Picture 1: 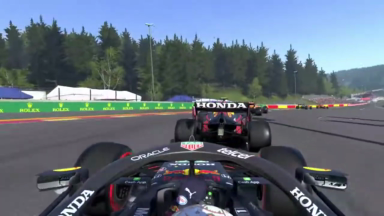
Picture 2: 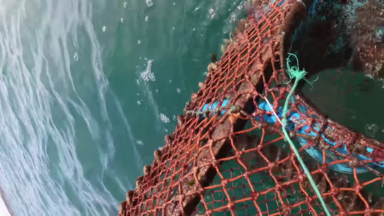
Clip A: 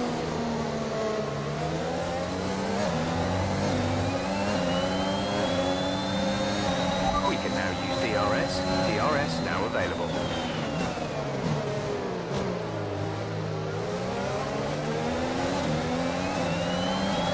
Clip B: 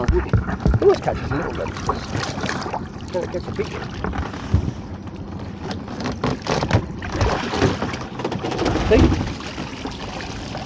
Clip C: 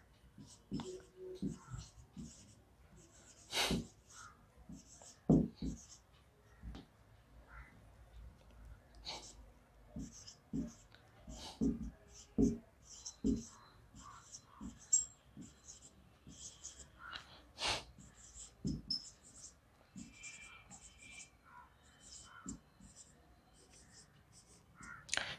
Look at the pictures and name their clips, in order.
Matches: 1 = A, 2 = B